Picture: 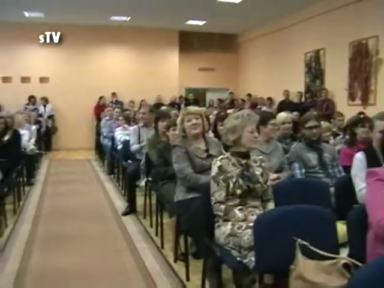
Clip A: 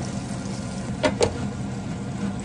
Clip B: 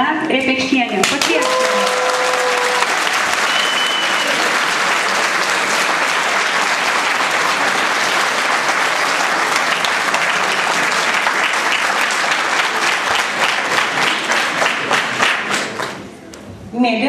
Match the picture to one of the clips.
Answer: B